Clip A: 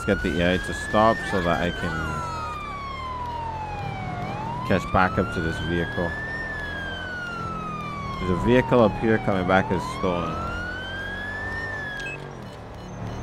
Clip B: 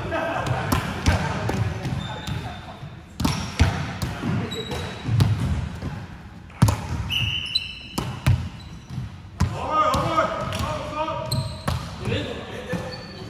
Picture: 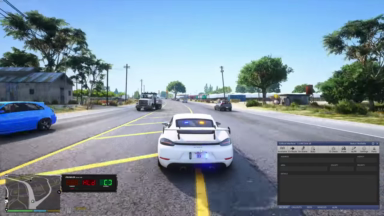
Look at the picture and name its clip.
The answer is A